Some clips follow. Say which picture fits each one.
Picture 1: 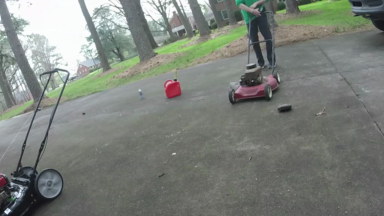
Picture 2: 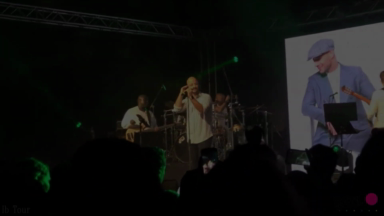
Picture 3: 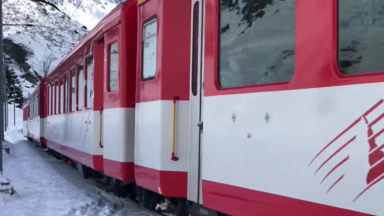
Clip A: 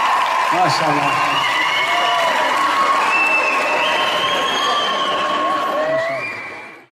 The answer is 2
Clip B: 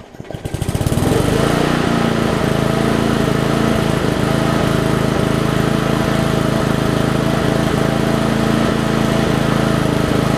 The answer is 1